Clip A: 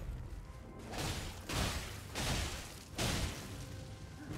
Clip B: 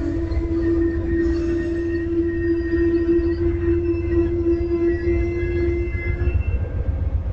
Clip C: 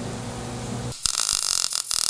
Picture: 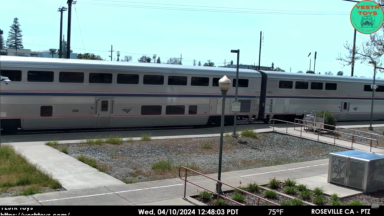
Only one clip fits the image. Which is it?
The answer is B